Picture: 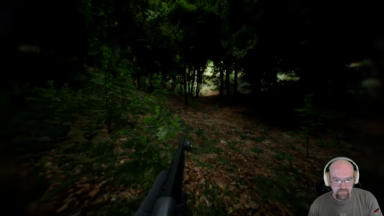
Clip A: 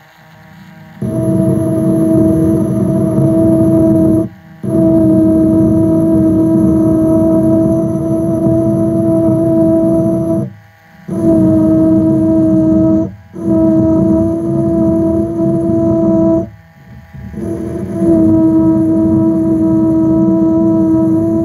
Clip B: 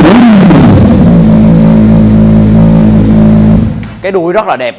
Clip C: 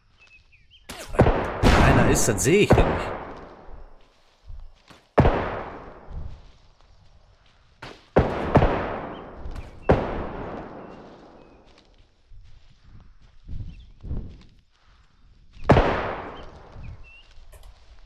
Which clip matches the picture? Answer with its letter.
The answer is C